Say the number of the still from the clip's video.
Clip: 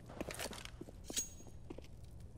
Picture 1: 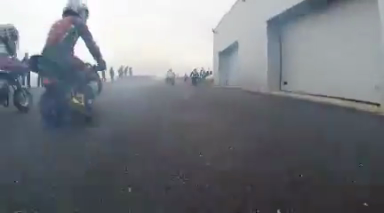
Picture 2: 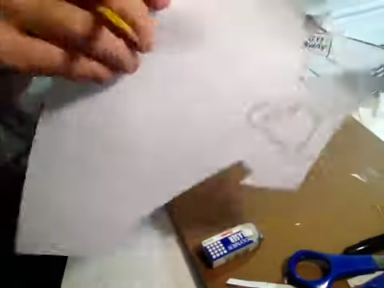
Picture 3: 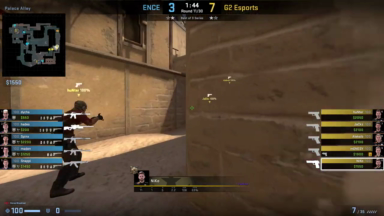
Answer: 3